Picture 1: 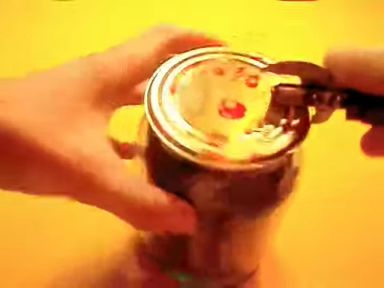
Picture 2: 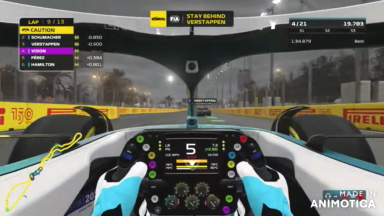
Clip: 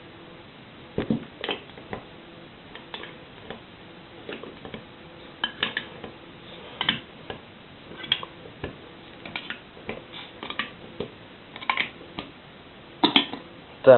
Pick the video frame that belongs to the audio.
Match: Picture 1